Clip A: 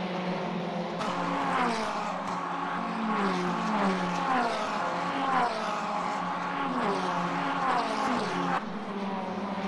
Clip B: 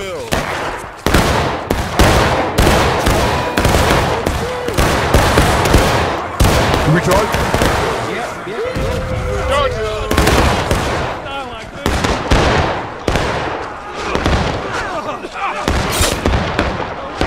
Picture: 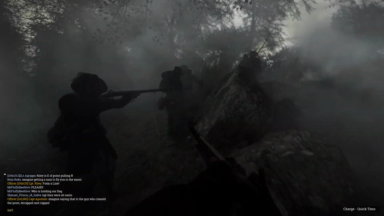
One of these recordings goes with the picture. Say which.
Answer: B